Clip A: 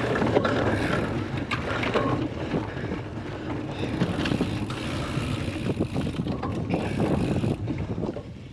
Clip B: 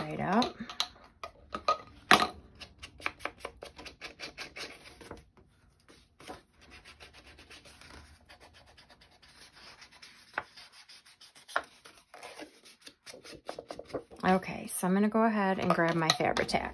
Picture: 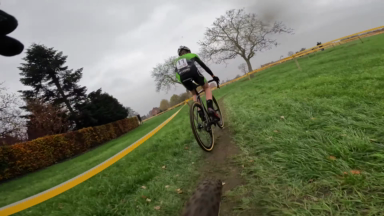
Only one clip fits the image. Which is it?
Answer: A